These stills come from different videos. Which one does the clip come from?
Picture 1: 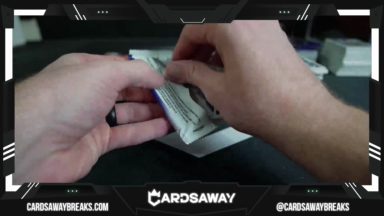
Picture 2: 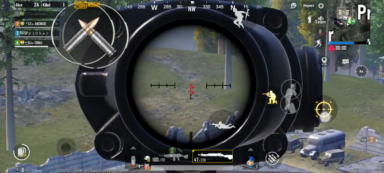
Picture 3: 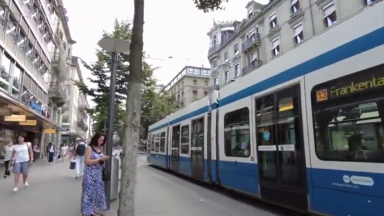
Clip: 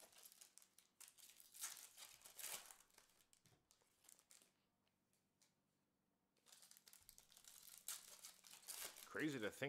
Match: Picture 1